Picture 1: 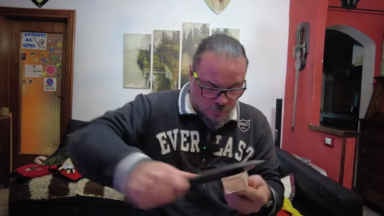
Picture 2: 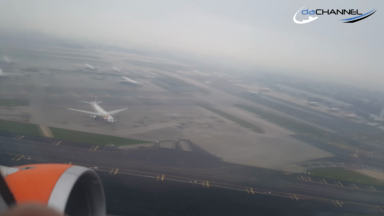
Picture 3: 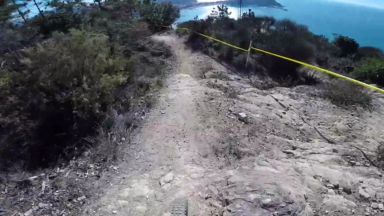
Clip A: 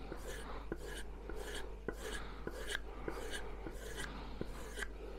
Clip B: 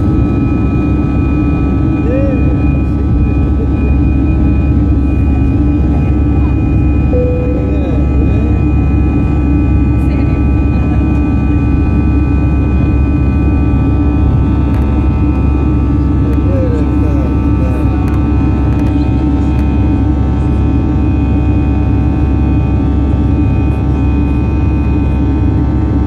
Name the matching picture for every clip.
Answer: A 1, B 2